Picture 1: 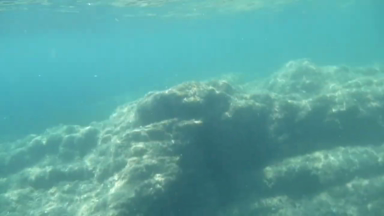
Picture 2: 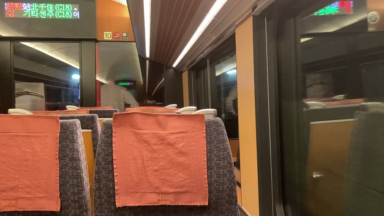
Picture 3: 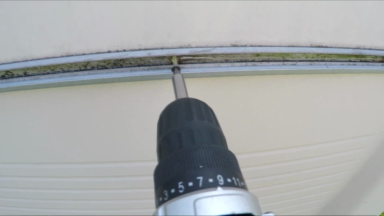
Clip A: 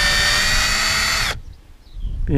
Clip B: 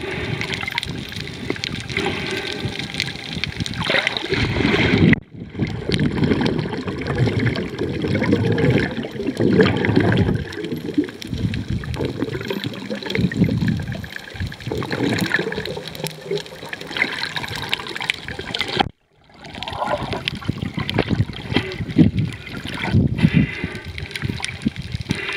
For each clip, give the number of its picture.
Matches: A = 3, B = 1